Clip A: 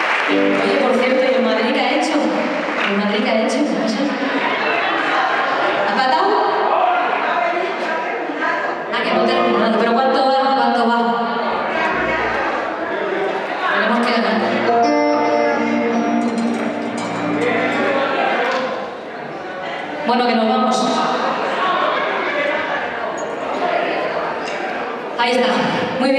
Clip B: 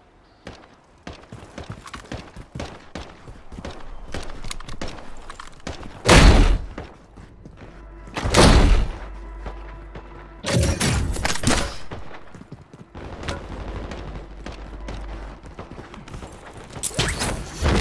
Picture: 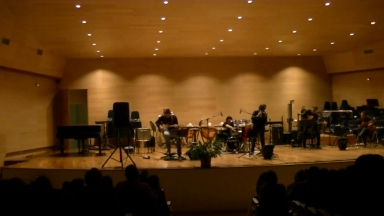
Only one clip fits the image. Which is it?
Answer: A